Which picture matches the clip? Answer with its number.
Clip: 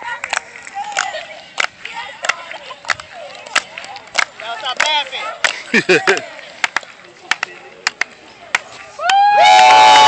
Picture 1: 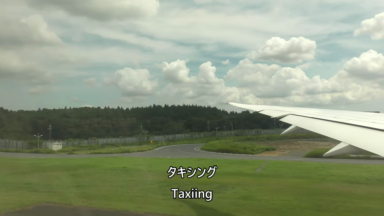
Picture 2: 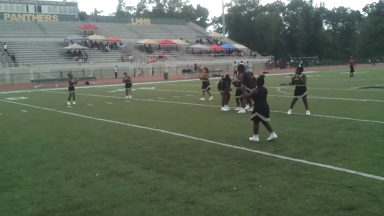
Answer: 2